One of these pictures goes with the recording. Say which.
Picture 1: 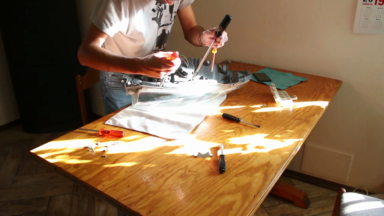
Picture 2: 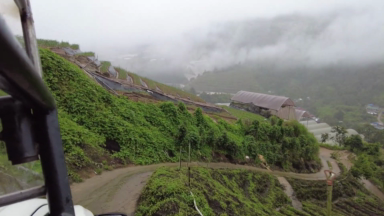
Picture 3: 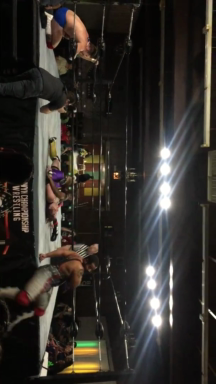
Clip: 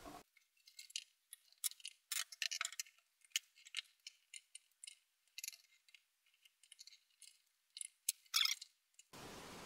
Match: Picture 1